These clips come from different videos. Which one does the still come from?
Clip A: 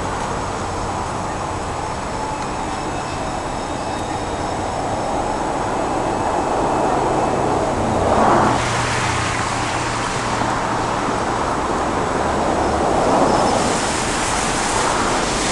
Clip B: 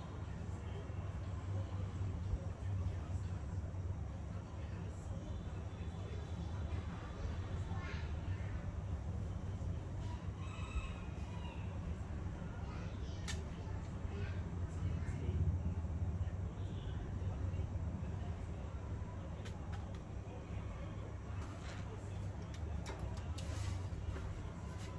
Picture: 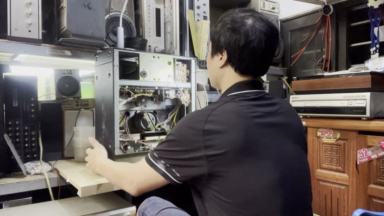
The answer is B